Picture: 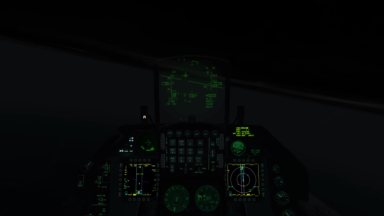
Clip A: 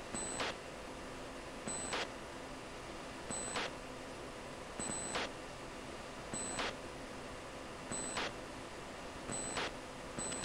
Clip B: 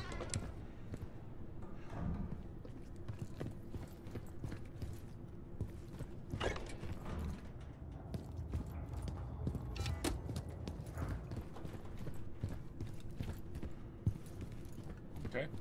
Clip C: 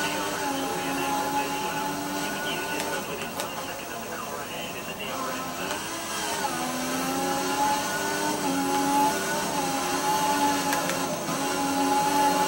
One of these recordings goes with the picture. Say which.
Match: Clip A